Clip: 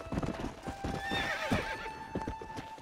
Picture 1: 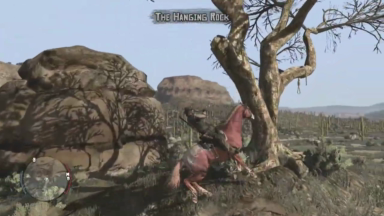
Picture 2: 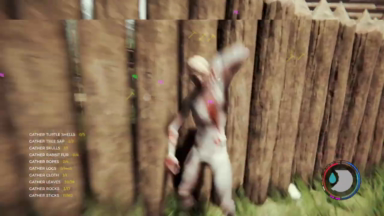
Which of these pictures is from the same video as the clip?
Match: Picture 1